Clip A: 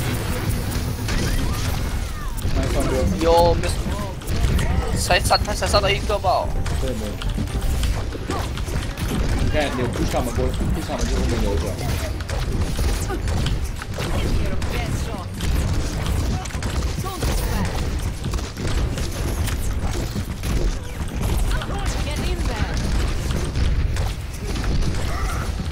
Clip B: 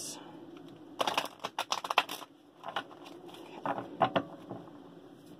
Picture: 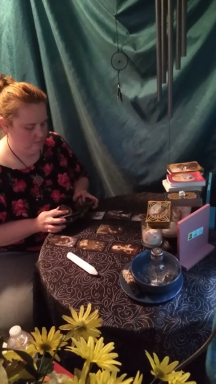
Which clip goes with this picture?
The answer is B